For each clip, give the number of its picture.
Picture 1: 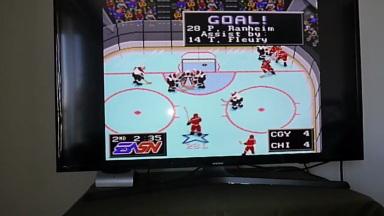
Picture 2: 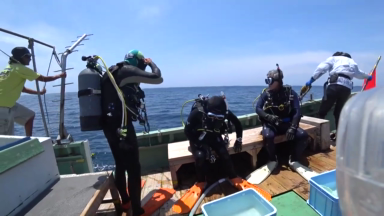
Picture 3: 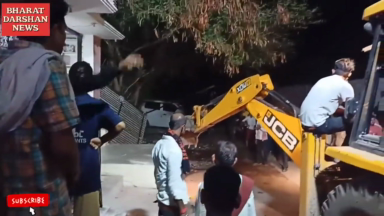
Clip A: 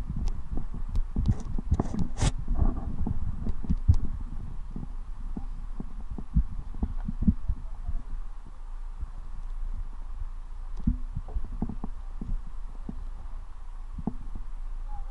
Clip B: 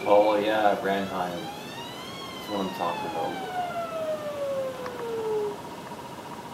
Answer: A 2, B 1